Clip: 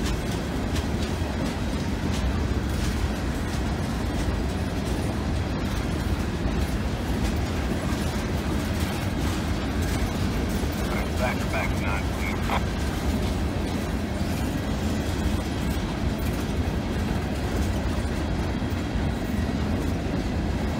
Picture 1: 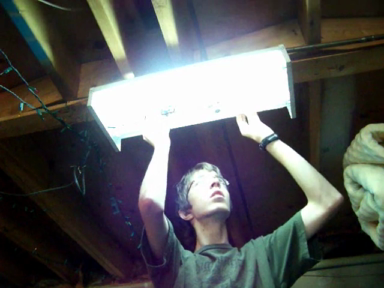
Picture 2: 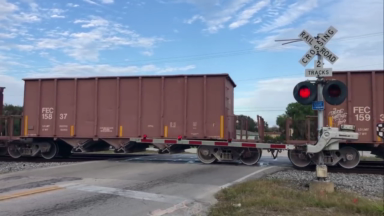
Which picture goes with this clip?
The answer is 2